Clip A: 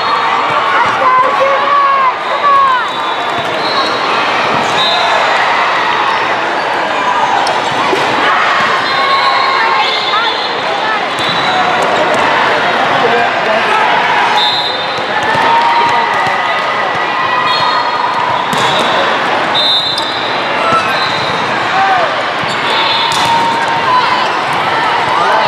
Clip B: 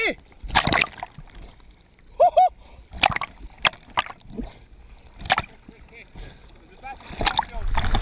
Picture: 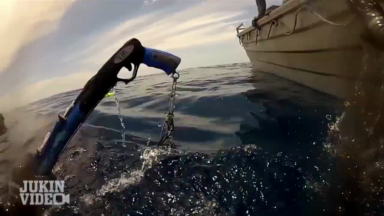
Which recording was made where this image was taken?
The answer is B